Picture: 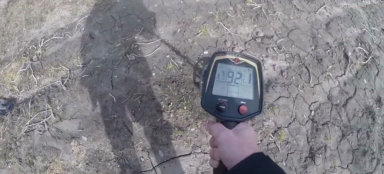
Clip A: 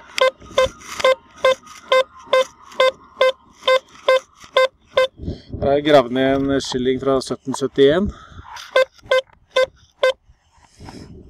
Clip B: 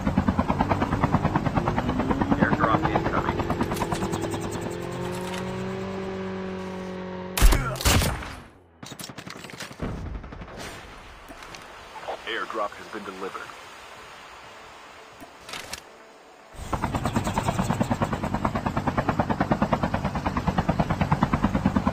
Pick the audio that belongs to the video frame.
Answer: A